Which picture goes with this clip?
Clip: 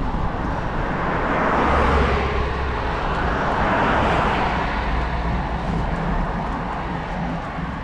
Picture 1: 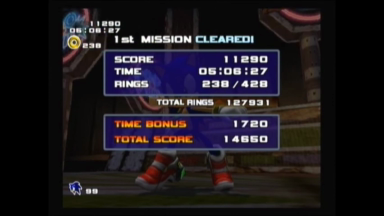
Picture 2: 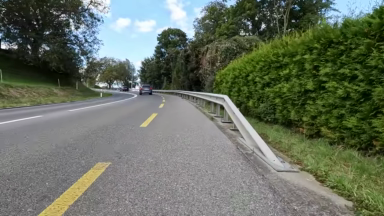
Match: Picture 2